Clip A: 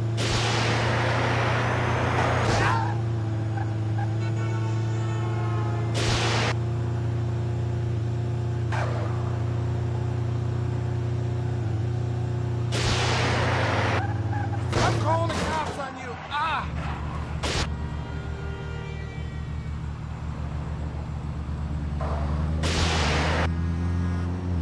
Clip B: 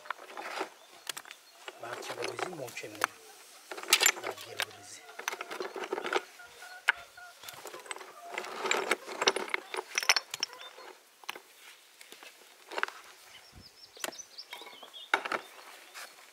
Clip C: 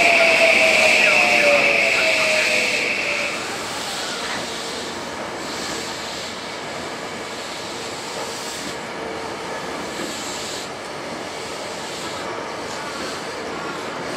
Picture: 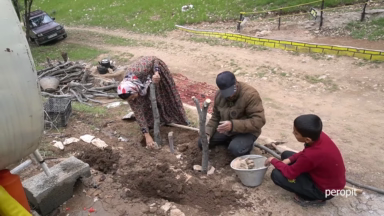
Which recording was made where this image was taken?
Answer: B